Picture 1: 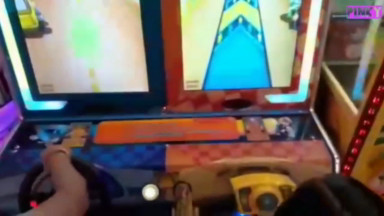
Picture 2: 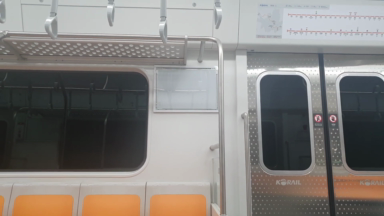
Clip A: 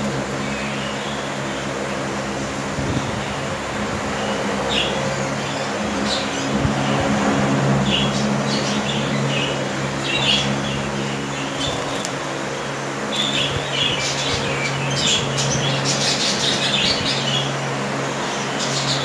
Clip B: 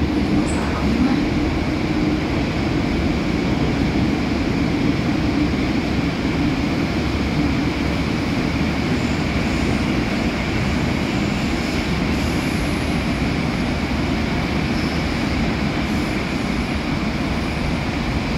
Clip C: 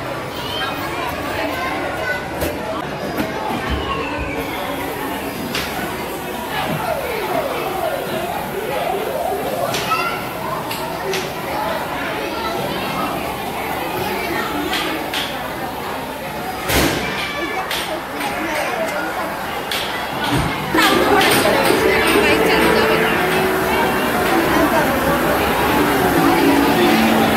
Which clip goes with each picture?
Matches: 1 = C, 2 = B